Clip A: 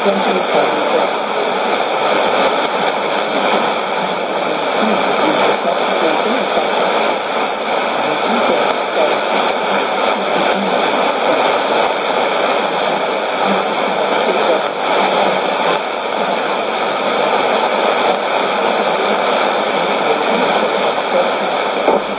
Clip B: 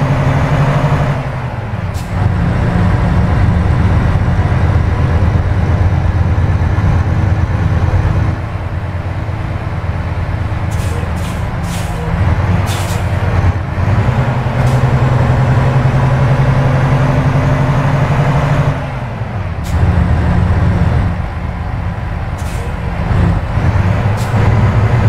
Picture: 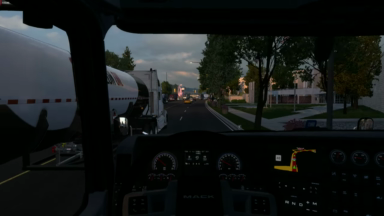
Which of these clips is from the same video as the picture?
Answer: B